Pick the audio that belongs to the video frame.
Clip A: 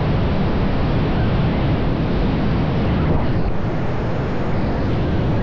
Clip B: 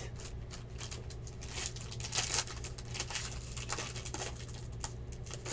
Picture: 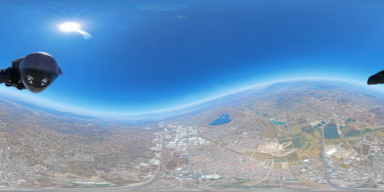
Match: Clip A